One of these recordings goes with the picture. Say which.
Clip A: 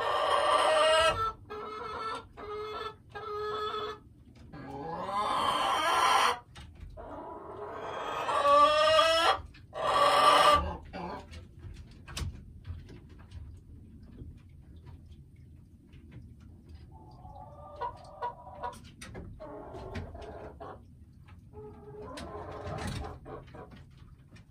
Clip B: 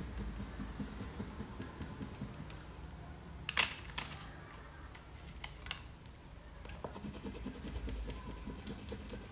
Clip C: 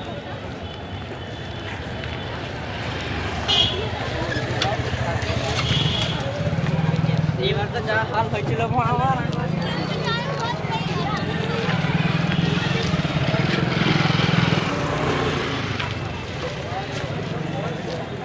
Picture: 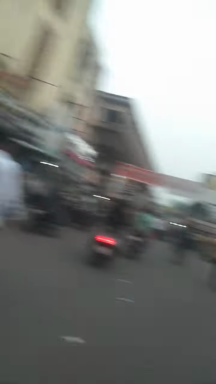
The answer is C